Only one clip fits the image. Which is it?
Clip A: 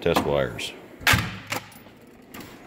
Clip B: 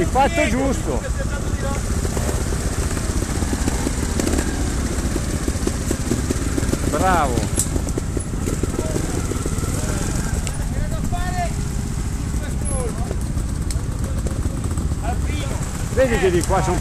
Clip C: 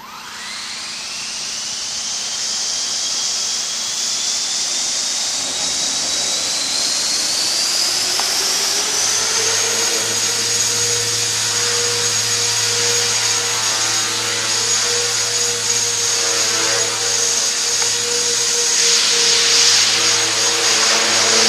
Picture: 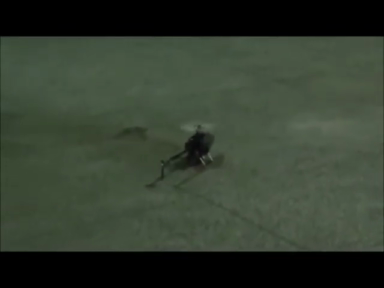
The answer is C